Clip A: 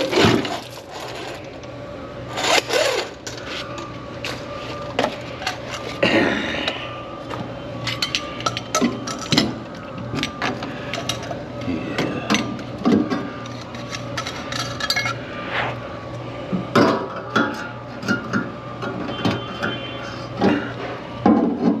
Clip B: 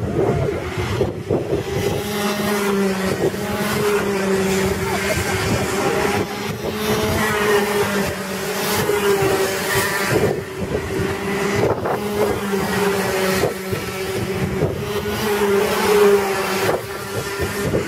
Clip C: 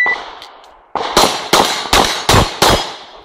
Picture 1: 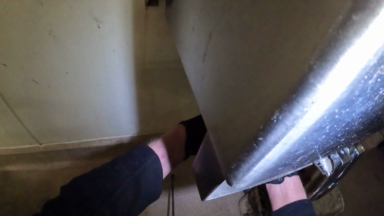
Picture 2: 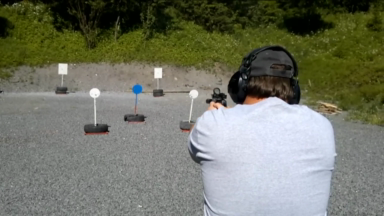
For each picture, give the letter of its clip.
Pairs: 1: A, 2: C